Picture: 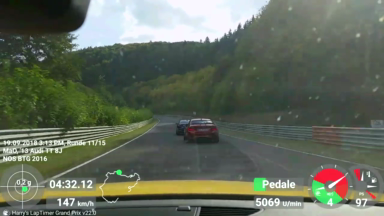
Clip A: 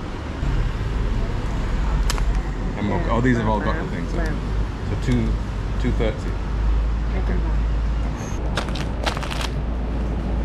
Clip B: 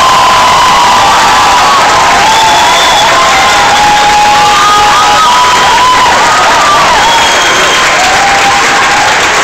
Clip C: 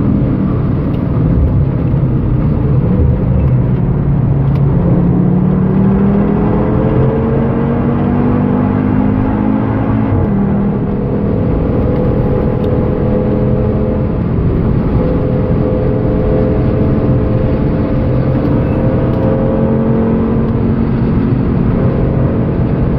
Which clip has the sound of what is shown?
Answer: C